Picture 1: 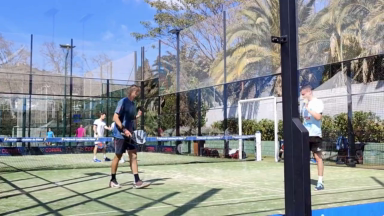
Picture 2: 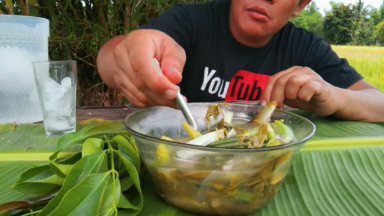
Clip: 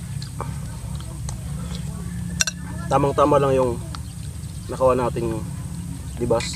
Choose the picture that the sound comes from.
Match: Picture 2